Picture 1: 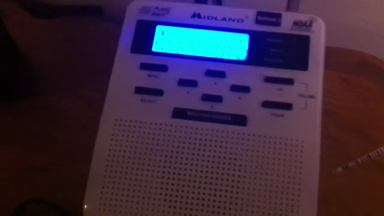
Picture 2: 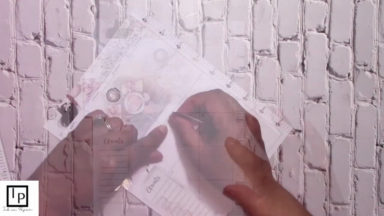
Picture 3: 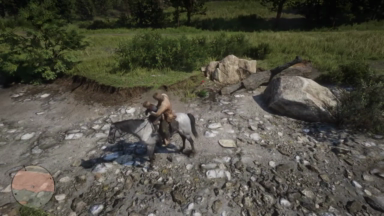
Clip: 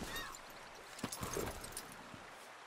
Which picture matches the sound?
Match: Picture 3